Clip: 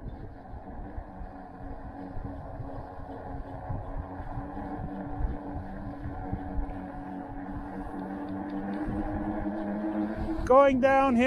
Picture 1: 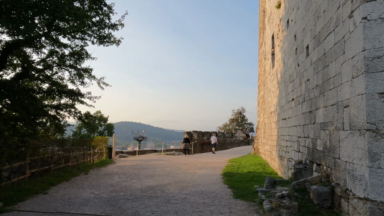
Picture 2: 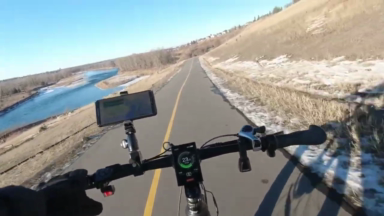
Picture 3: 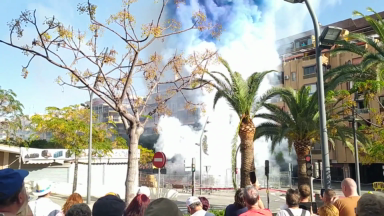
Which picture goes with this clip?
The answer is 2